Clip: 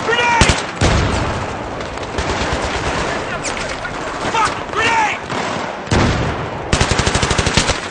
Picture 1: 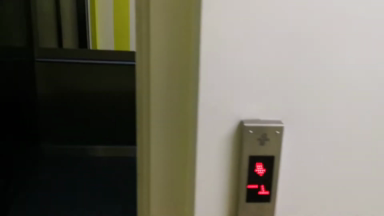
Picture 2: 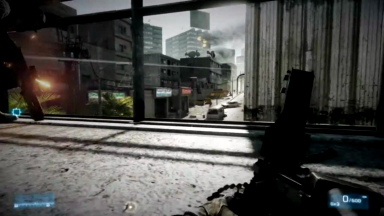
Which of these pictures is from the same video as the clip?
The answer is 2